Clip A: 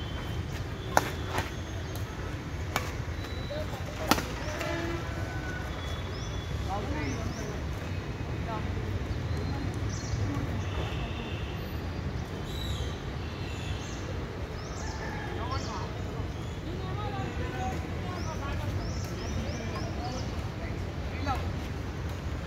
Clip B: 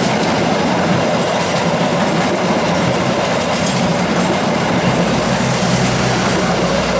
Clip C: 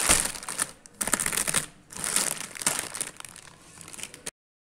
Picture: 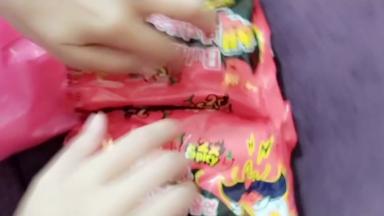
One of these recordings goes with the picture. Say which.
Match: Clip C